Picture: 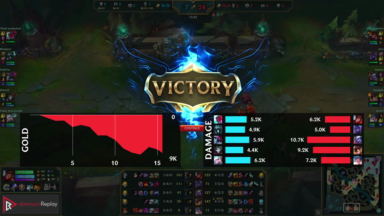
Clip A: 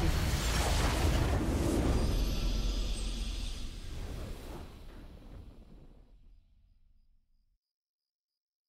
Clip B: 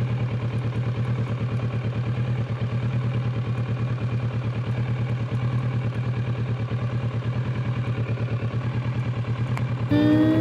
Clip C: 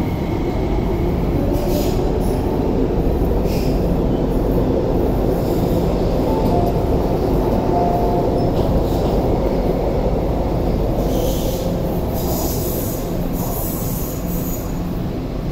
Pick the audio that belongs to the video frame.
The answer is A